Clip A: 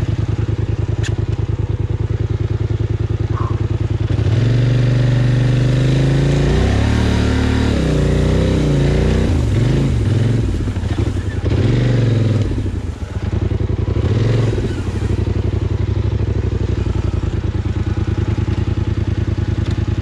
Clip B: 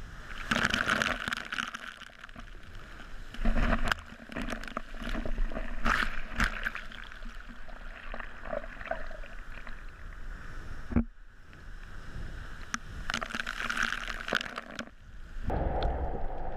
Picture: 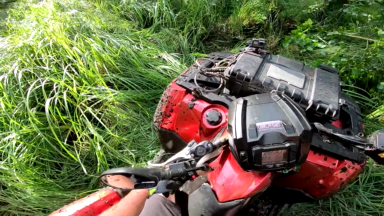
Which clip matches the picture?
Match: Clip A